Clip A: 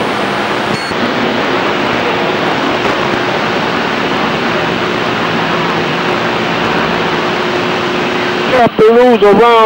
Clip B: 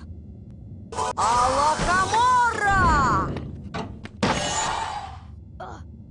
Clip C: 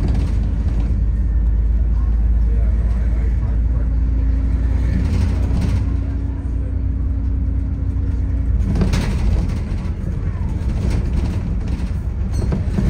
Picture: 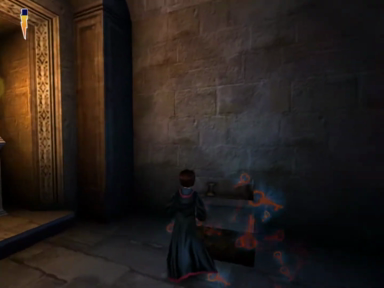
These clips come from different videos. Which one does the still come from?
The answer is B